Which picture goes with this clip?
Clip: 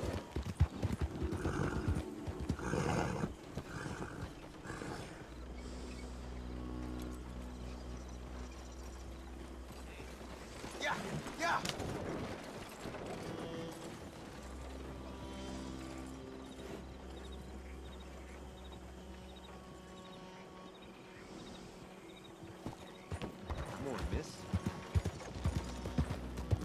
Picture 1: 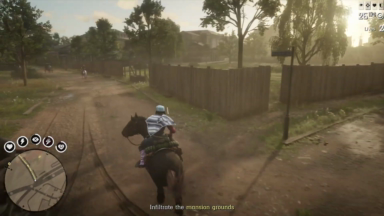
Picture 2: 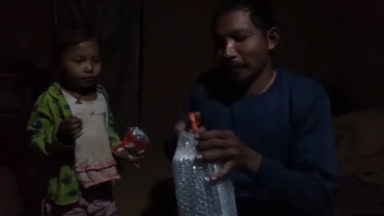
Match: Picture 1